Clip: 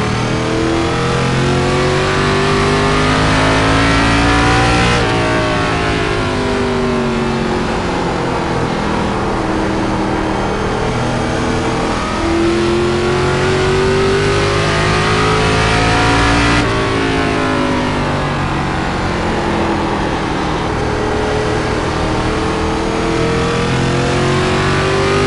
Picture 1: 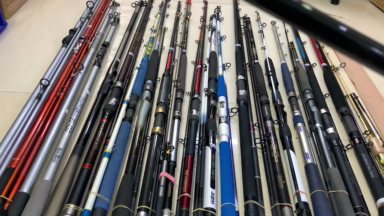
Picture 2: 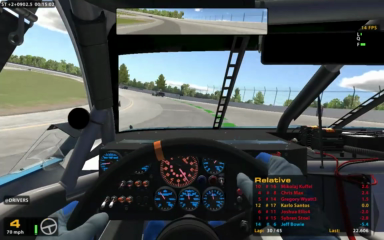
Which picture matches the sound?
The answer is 2